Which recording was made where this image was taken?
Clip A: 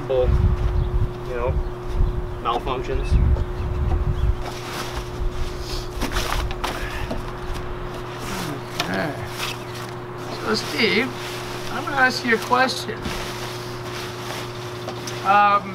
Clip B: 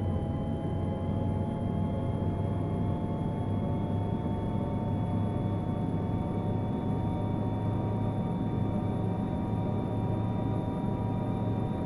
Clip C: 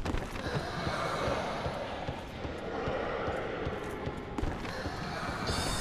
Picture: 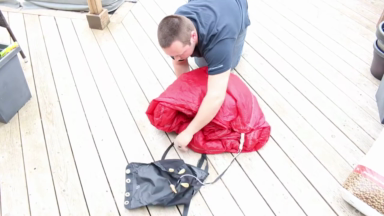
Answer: A